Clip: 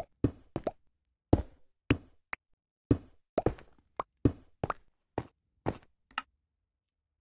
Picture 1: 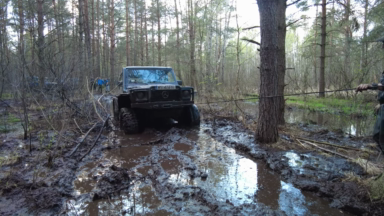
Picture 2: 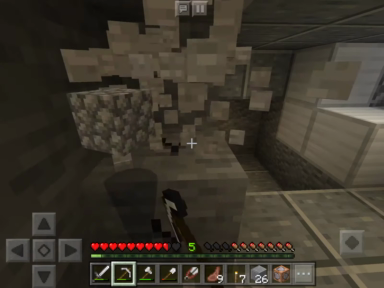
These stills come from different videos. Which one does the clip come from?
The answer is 2